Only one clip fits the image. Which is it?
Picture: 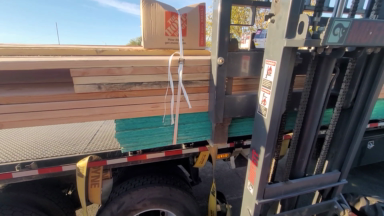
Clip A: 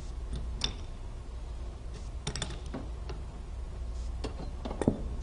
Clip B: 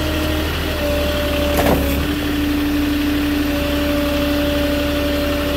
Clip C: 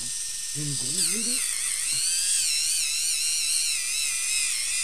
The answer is B